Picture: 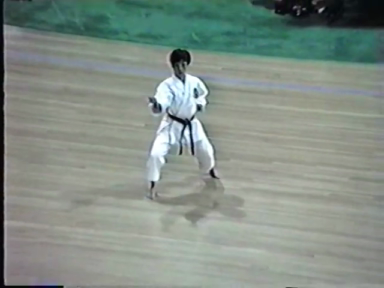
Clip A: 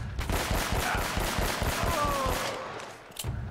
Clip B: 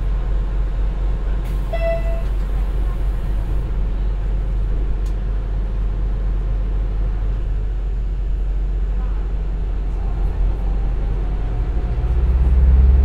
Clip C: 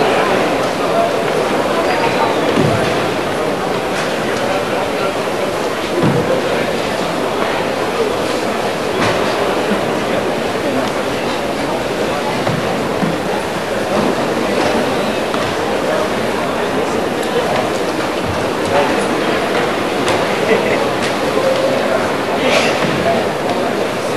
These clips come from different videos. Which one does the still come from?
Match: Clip C